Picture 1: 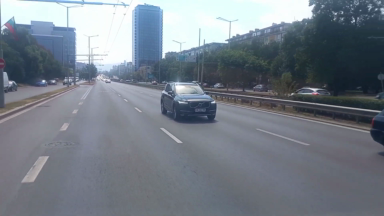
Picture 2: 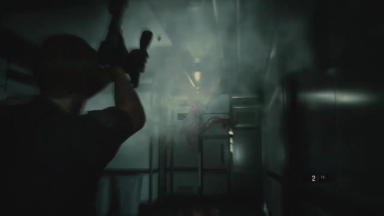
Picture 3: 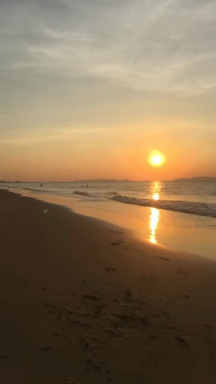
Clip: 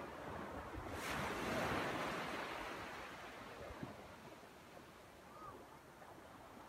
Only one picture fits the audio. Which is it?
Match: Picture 3